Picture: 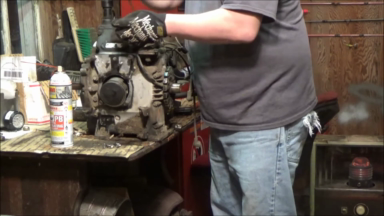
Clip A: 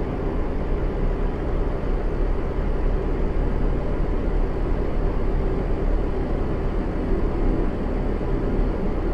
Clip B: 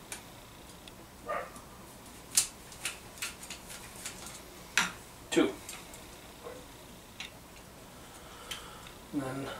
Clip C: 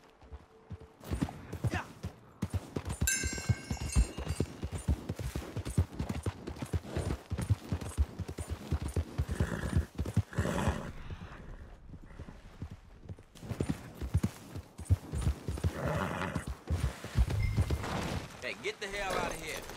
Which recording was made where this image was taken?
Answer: B